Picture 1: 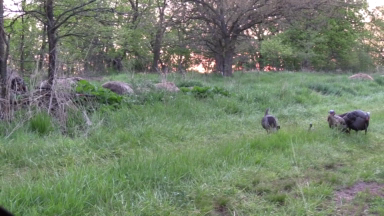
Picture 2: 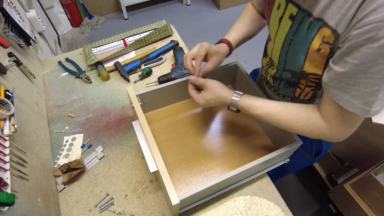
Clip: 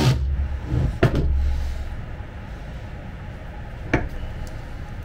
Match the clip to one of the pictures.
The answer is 2